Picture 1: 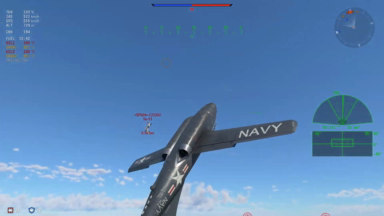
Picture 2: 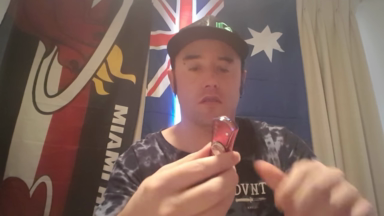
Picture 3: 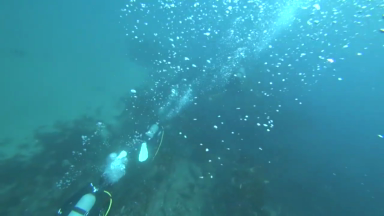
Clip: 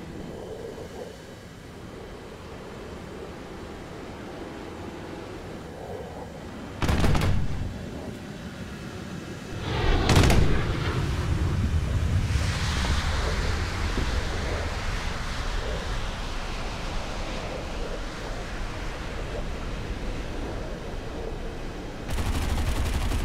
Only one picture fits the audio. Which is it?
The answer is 1